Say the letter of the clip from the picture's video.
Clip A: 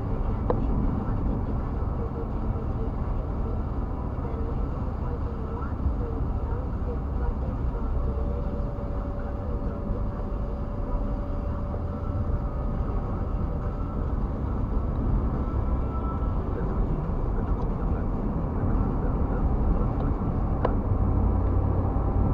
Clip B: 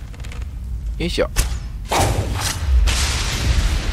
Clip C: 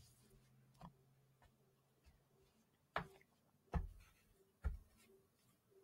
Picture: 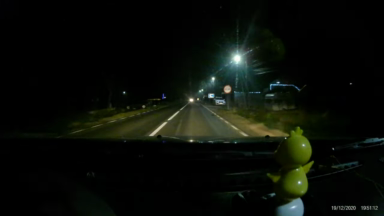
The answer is A